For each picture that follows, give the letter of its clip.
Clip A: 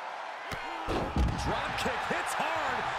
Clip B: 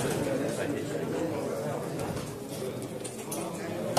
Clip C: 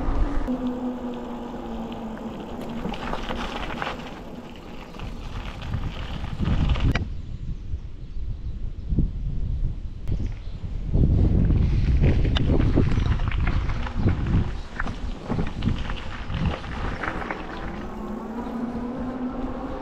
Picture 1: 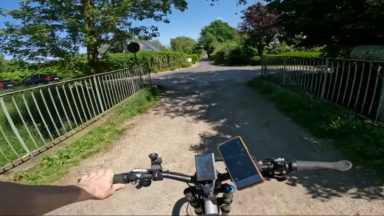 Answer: C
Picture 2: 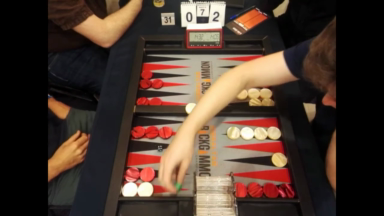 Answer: B